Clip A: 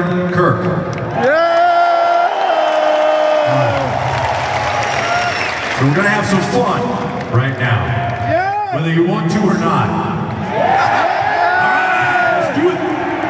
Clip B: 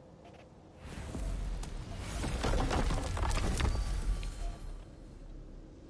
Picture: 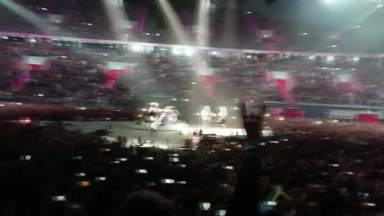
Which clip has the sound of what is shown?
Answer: A